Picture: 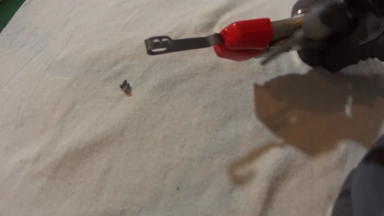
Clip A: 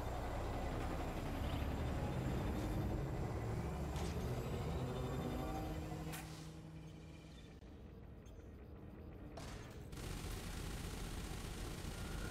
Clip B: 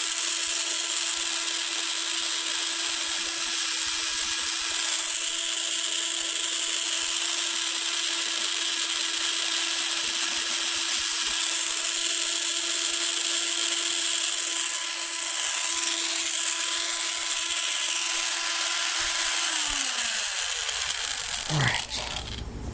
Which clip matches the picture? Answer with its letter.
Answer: B